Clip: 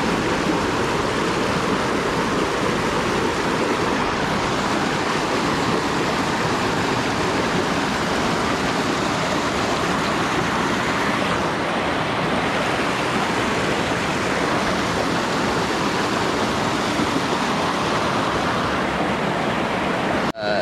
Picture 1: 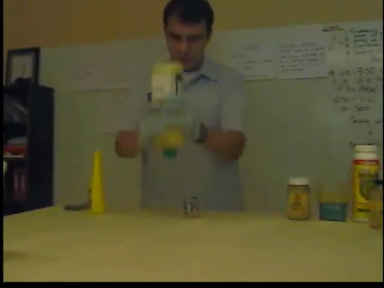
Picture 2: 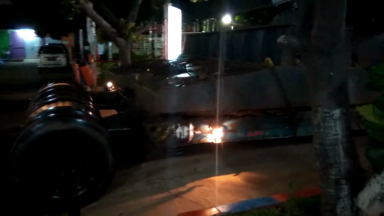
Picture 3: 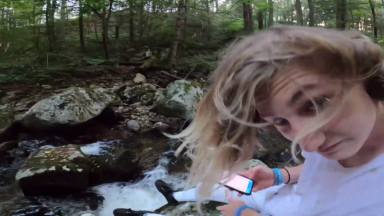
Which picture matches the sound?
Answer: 3